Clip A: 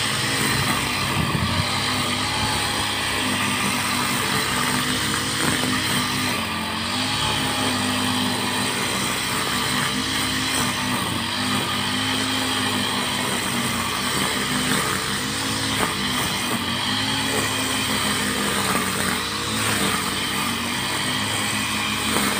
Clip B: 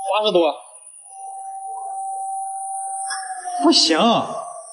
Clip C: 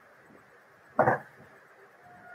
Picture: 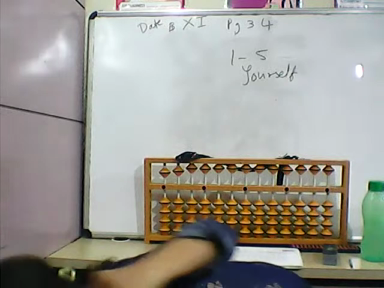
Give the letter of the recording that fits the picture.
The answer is C